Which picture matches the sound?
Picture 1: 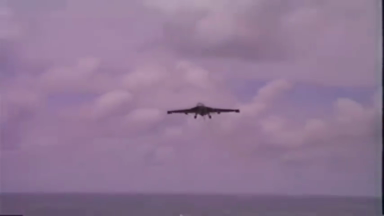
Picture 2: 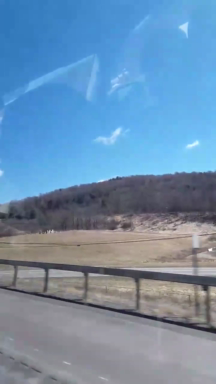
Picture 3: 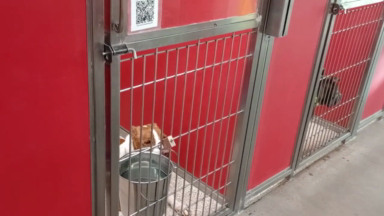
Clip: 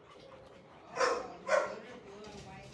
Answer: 3